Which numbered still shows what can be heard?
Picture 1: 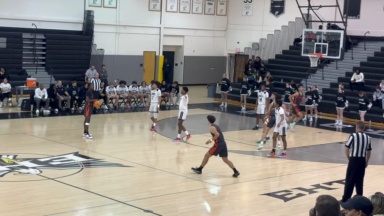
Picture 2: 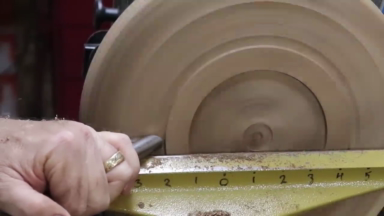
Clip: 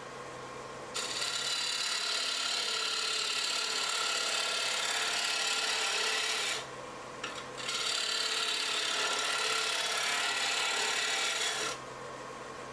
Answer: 2